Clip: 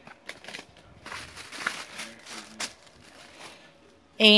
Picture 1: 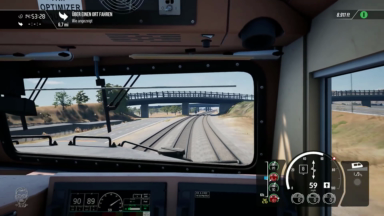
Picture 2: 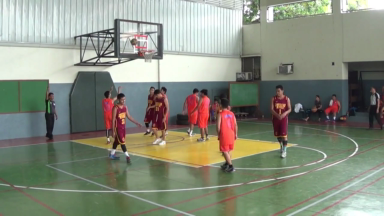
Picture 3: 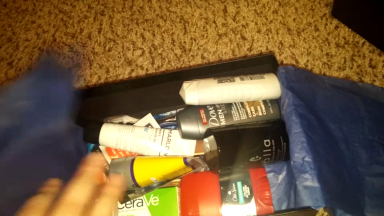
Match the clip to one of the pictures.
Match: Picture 3